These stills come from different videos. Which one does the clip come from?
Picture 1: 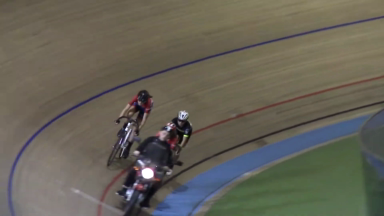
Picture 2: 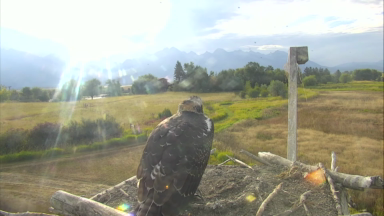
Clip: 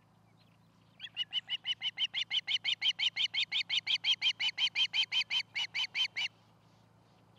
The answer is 2